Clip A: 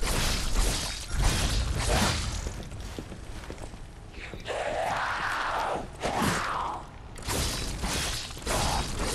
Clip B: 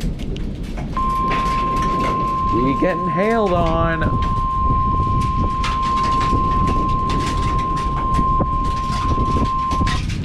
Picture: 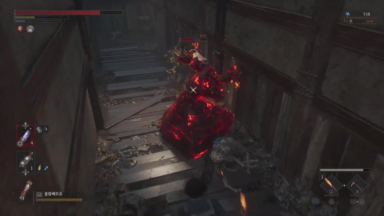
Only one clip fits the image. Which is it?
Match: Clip A